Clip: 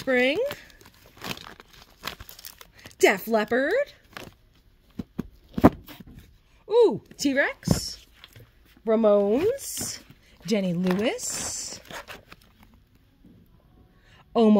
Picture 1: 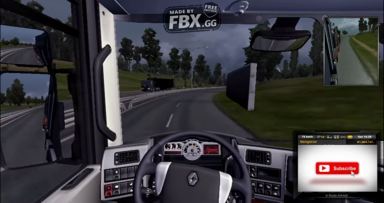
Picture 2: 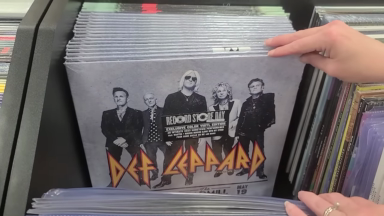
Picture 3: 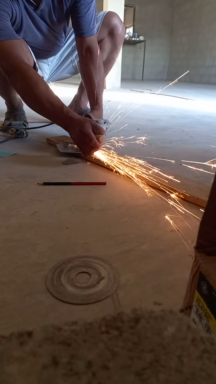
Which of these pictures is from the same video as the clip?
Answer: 2